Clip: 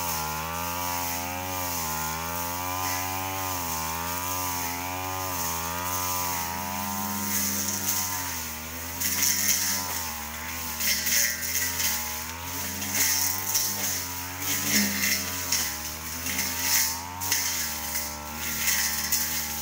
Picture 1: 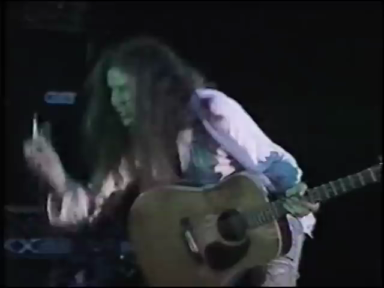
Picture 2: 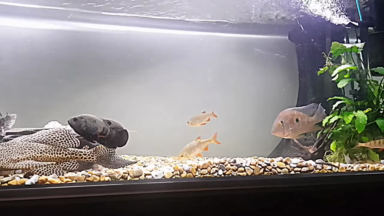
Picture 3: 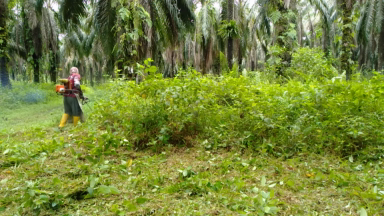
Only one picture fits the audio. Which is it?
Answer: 3